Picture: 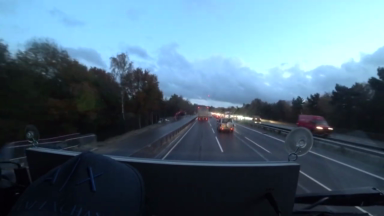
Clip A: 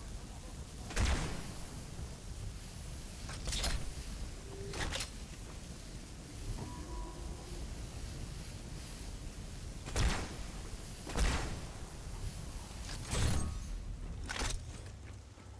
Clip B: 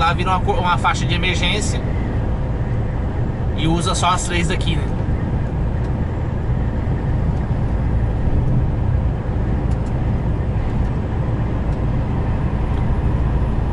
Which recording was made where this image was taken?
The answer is B